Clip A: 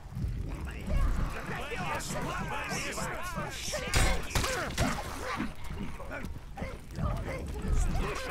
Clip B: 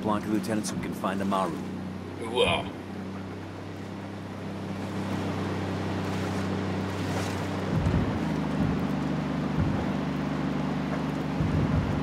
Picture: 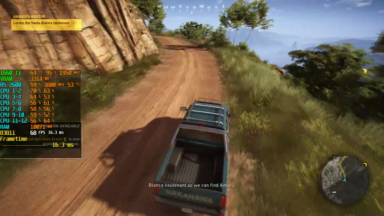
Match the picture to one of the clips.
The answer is B